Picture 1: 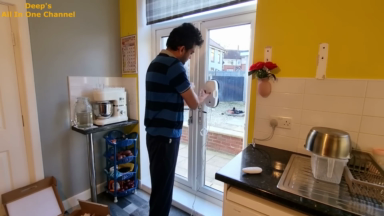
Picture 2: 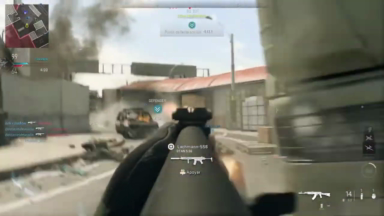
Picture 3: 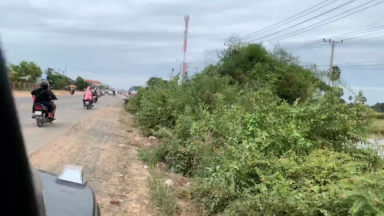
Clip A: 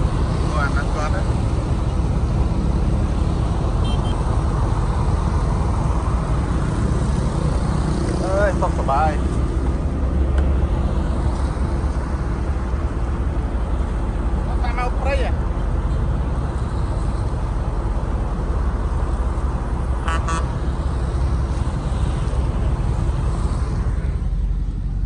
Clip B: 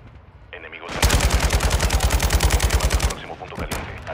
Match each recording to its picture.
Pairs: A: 3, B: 2